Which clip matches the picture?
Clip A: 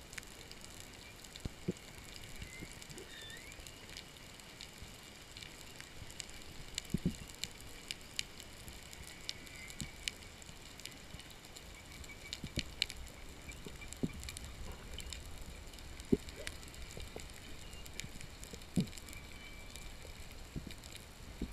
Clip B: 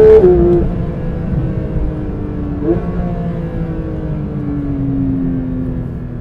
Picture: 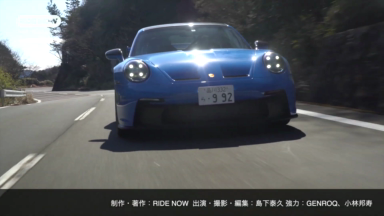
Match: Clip B